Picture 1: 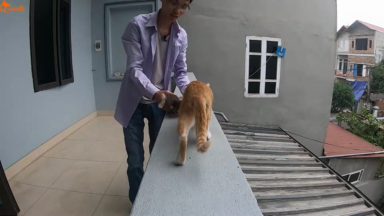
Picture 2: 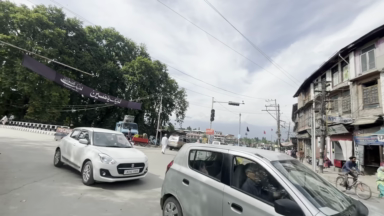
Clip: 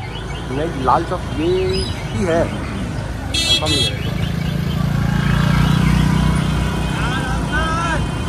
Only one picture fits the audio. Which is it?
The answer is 2